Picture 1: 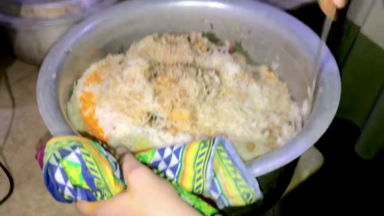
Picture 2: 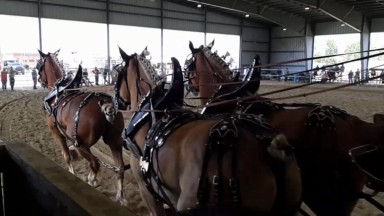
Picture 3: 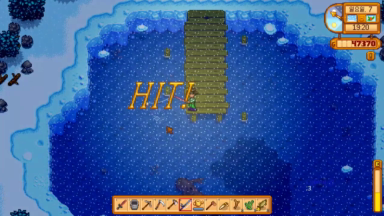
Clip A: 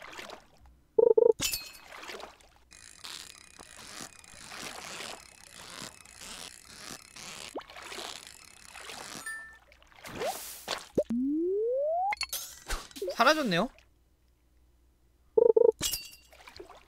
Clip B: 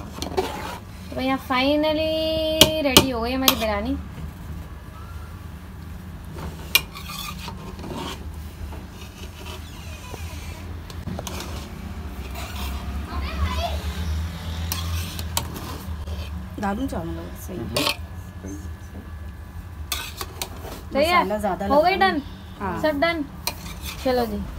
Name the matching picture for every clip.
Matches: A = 3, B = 1